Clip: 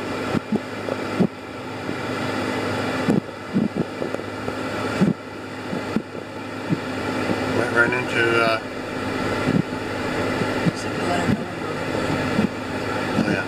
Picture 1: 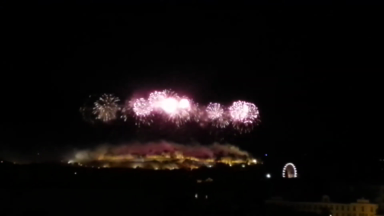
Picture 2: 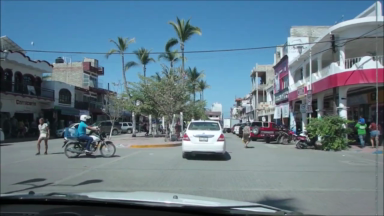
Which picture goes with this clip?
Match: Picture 2